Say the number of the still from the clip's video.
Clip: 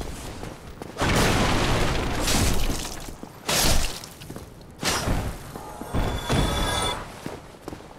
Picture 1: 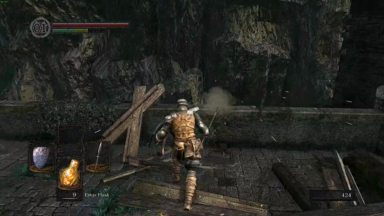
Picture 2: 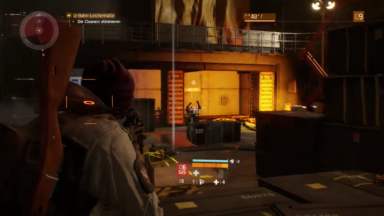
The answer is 1